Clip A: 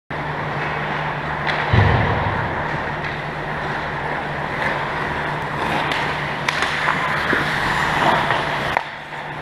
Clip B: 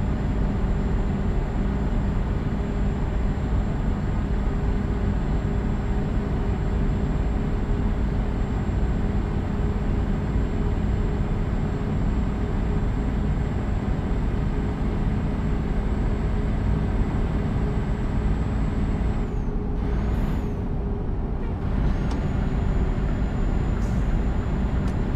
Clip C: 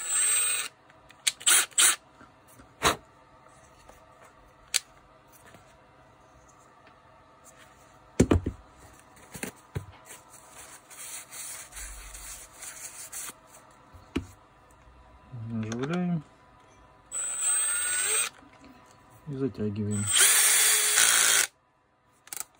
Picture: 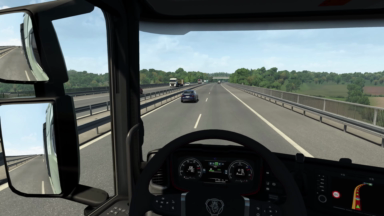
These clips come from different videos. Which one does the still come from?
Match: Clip B